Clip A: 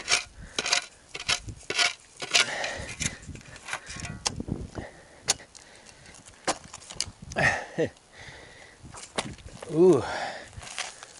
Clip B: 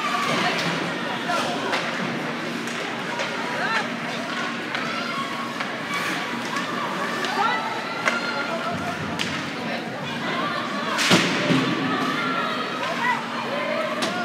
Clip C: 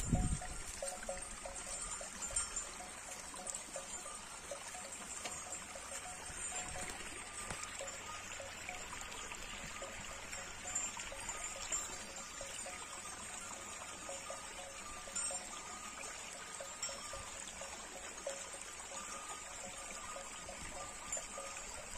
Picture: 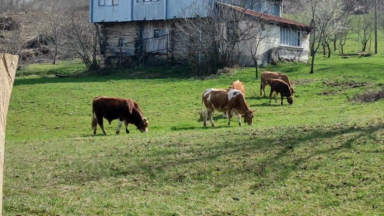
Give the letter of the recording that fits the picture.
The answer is C